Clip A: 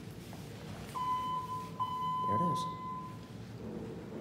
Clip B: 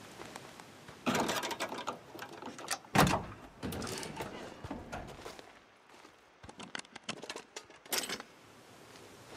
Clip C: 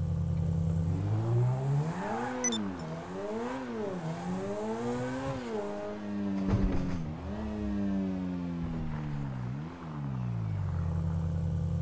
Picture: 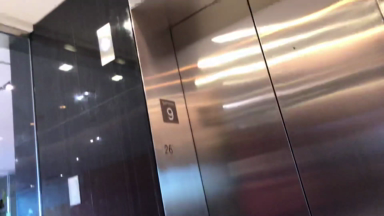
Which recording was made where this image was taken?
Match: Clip A